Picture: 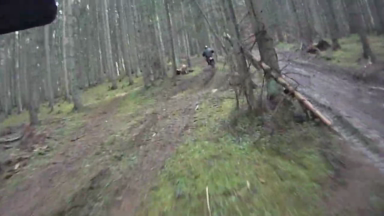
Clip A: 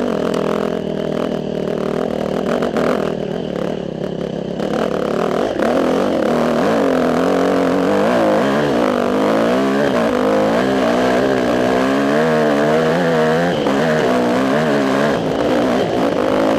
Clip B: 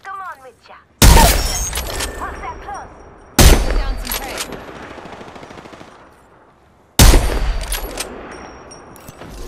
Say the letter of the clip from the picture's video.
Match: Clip A